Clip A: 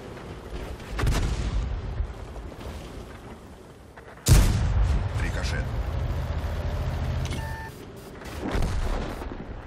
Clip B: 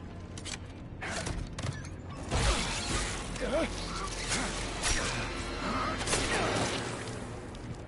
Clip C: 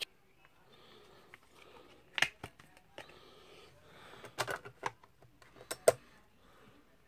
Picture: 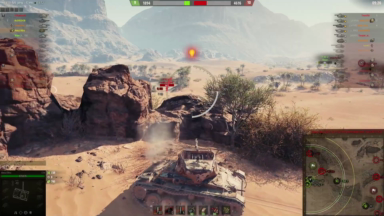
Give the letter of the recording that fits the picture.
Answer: A